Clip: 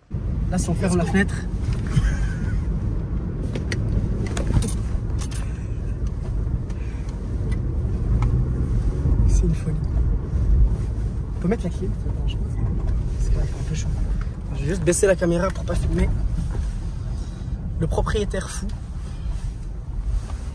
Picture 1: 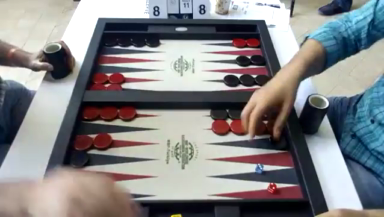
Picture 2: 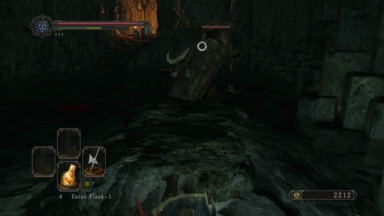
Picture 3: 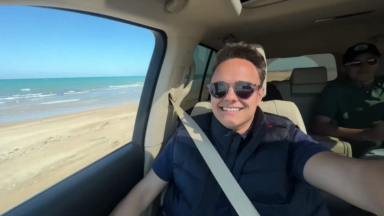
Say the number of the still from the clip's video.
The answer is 3